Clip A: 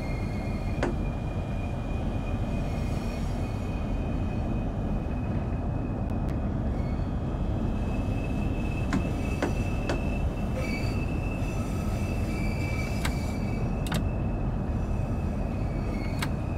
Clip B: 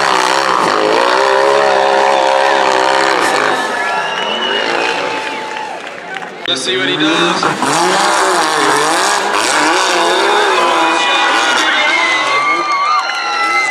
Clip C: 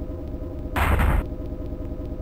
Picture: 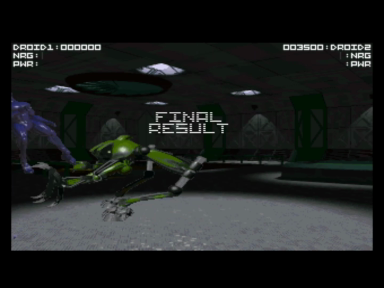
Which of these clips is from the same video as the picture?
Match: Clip C